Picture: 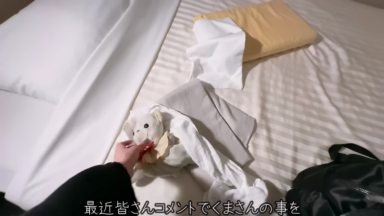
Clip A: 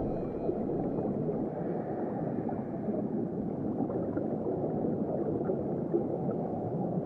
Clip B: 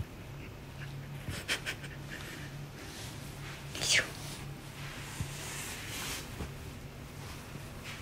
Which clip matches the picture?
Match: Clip B